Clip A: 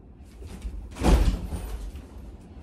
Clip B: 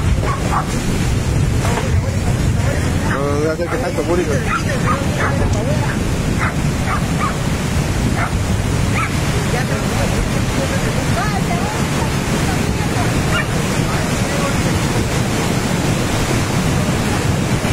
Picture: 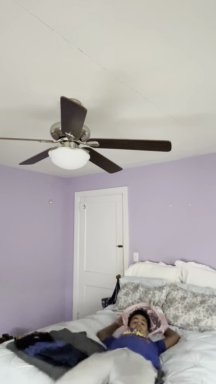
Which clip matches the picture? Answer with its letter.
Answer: A